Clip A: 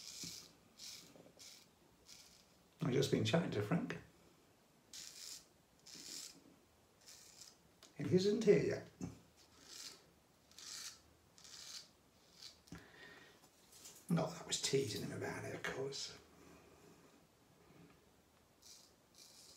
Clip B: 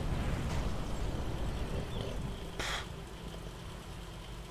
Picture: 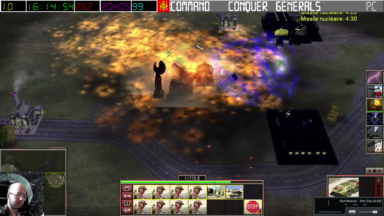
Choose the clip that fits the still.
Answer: B